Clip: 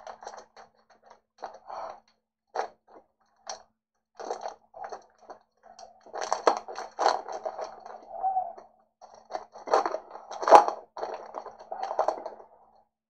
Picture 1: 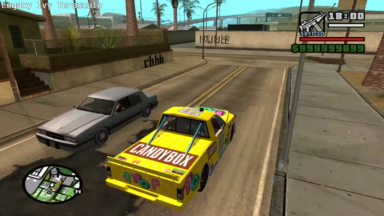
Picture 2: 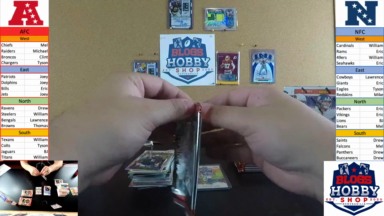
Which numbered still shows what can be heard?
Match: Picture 2